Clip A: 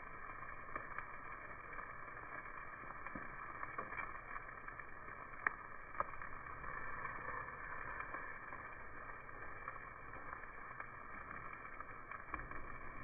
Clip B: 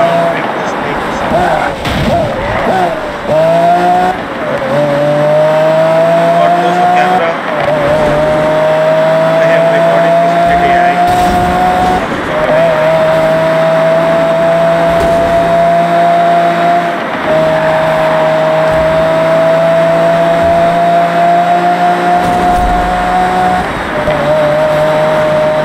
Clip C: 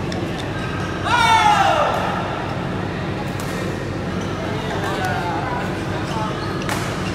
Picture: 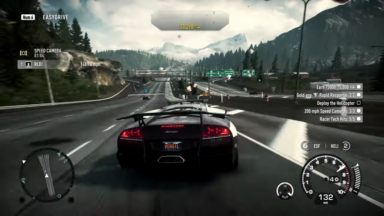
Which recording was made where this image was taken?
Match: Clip B